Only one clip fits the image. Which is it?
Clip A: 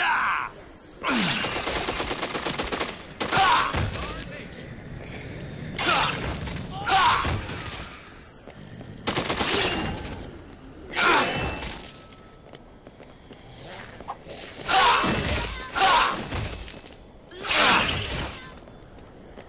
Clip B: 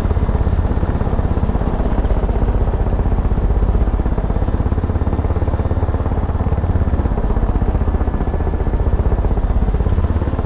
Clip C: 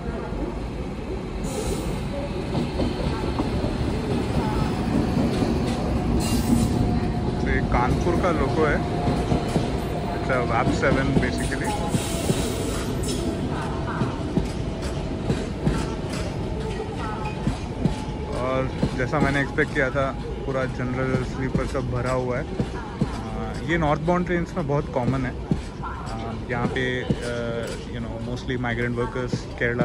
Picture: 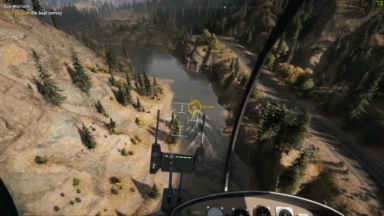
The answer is B